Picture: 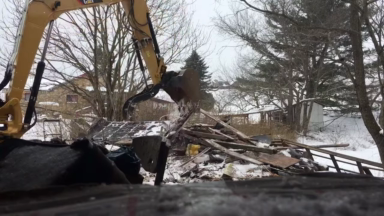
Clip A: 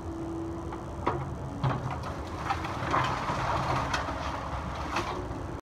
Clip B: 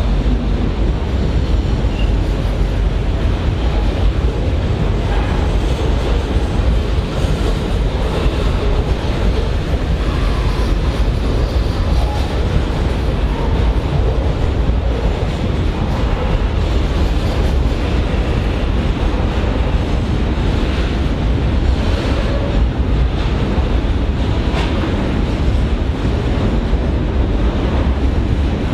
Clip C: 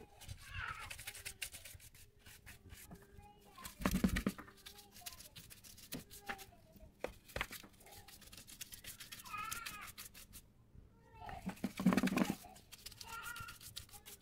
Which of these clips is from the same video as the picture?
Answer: A